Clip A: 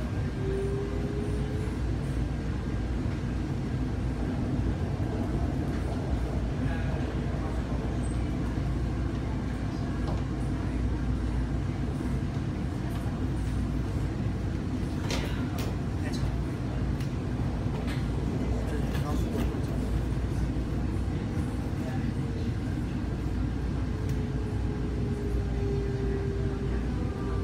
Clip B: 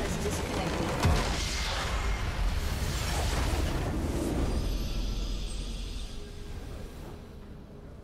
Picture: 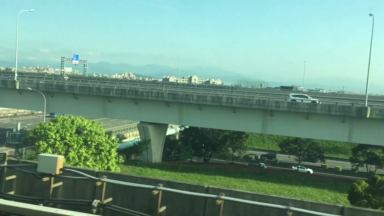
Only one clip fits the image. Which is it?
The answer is A